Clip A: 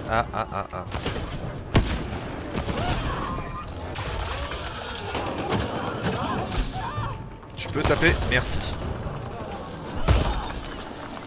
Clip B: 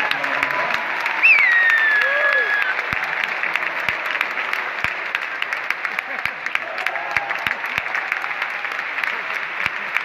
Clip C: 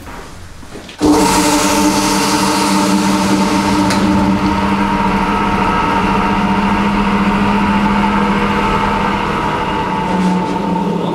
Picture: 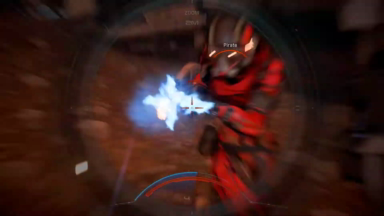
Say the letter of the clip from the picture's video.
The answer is A